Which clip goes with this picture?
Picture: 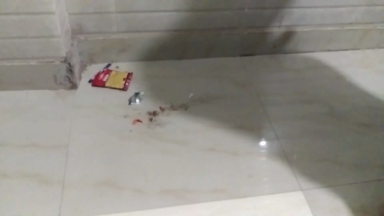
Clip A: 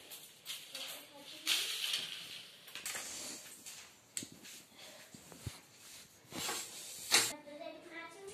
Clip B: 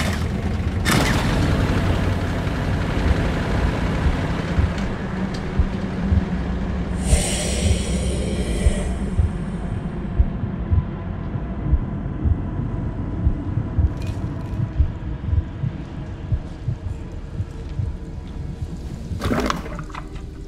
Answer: A